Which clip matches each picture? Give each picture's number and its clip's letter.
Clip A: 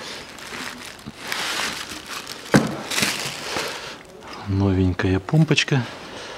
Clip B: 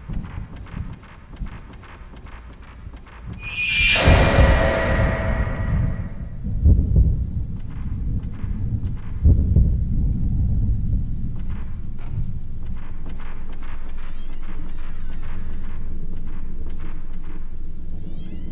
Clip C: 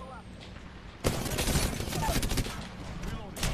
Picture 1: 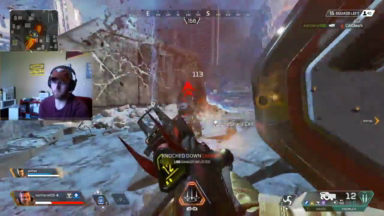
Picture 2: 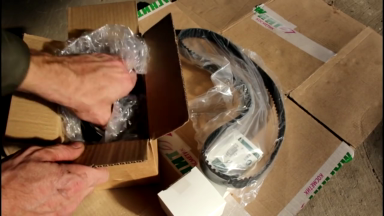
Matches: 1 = C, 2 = A